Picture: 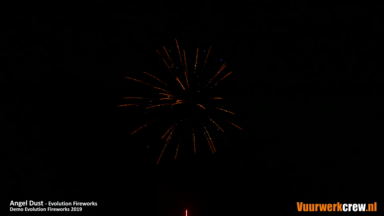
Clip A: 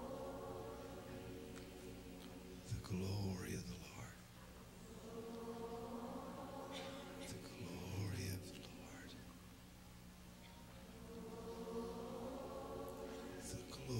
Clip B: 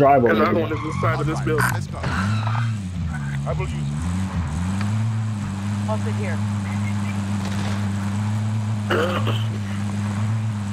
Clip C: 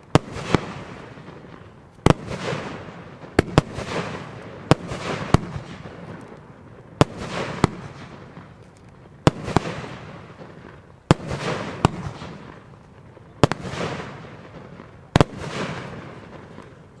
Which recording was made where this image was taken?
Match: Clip C